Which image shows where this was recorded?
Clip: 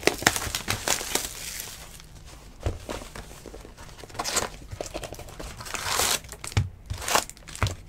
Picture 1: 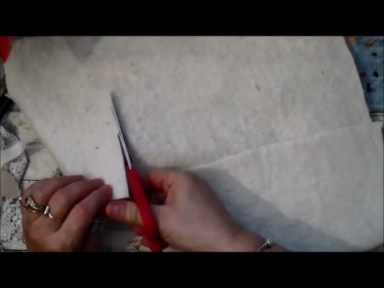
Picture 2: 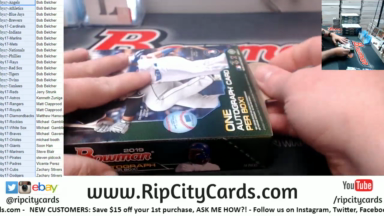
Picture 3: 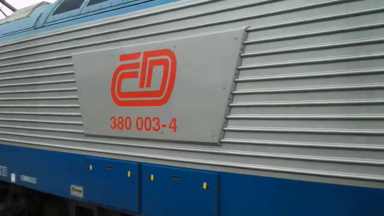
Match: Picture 2